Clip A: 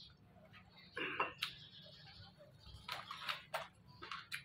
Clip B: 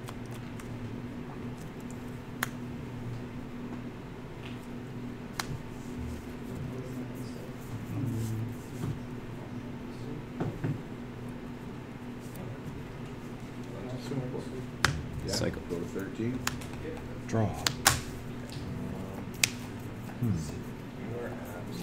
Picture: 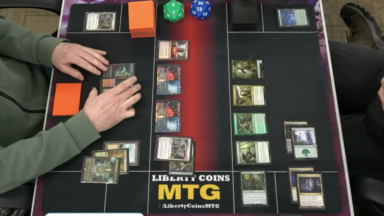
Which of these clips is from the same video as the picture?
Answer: B